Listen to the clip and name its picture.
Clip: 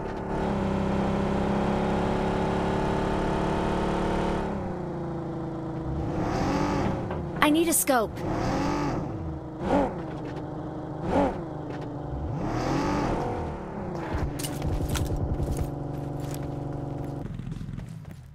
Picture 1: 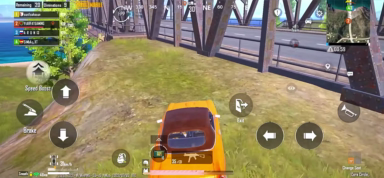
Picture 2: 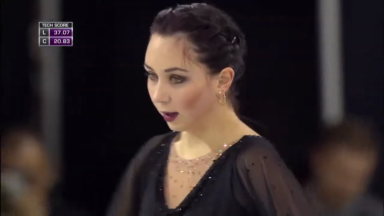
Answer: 1